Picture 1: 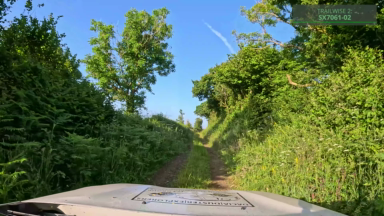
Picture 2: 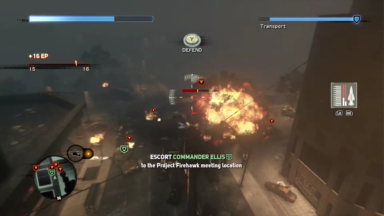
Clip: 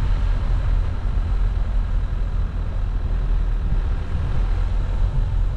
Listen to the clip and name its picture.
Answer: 1